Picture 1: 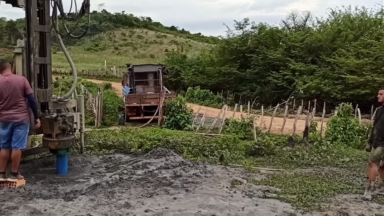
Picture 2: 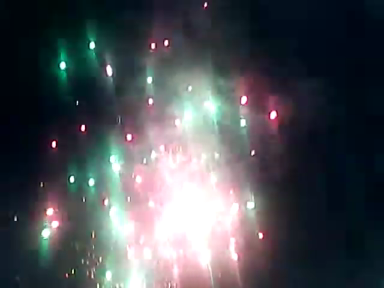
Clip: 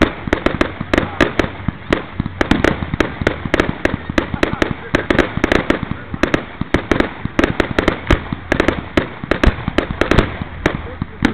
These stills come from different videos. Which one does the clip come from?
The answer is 2